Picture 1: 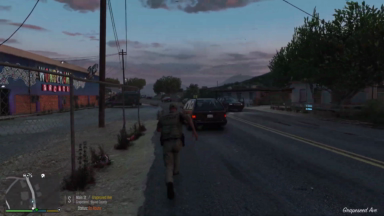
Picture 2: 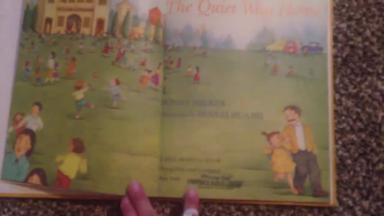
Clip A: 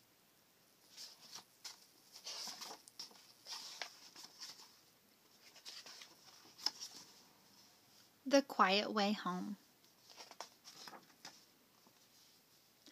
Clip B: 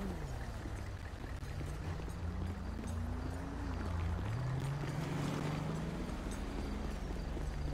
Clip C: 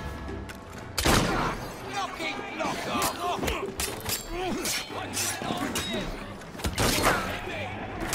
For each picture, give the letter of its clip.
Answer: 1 B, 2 A